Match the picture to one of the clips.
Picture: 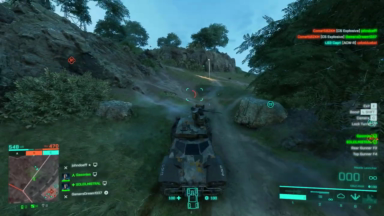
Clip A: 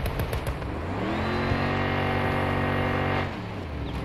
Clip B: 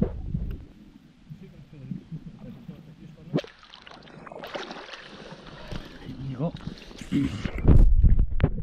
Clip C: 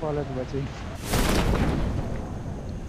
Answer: A